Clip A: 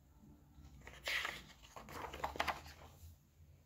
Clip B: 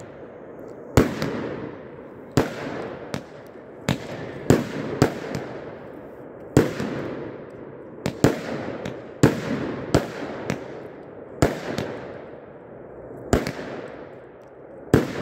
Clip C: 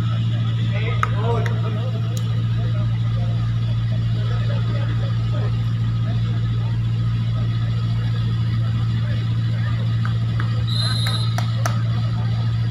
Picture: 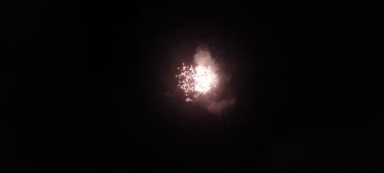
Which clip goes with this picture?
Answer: B